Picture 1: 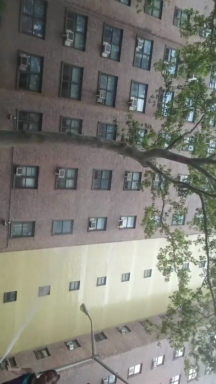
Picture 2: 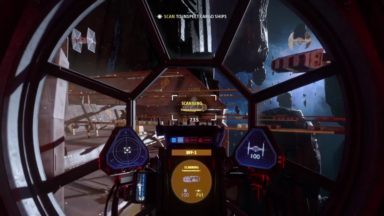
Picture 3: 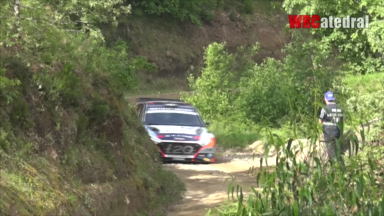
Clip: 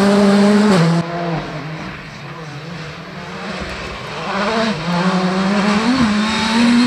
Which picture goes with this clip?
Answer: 3